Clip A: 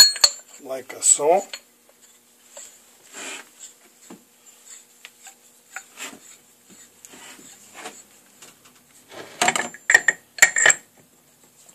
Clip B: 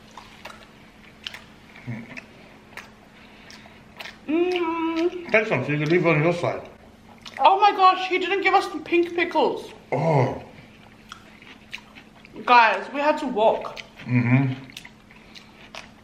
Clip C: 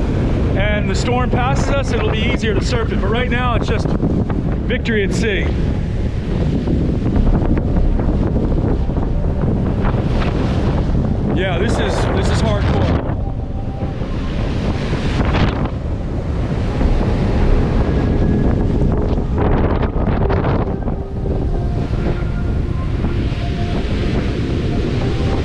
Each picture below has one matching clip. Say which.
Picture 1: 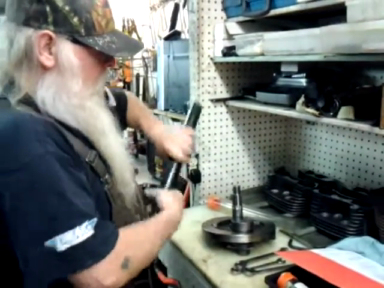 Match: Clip A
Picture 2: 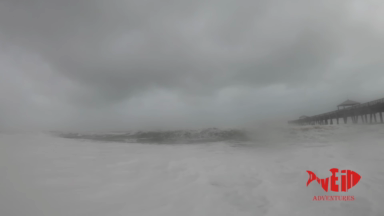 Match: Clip C